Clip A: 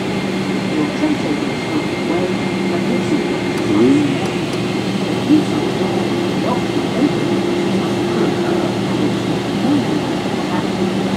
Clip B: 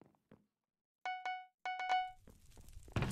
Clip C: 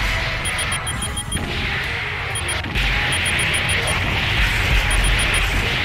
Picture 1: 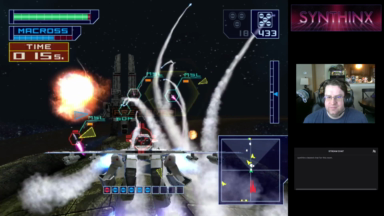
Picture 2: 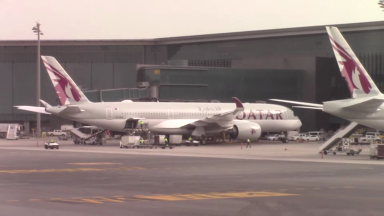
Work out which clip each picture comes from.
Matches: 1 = C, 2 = A